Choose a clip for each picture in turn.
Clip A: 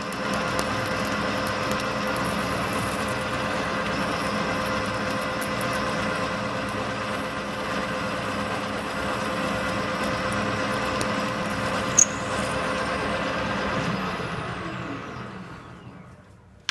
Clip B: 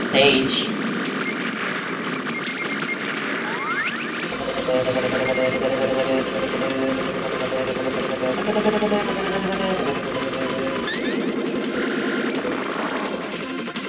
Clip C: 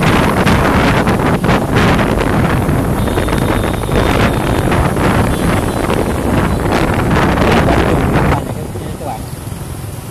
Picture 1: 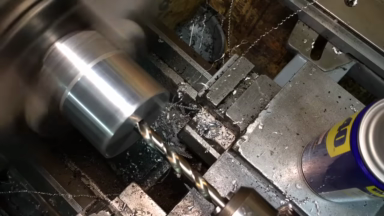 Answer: A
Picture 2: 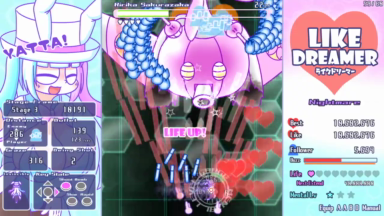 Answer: B